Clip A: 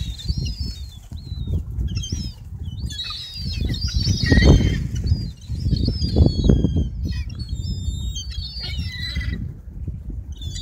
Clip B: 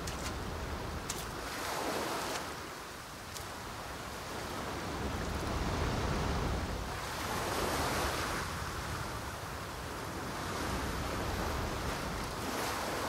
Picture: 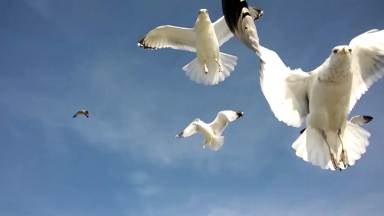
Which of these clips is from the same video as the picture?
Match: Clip A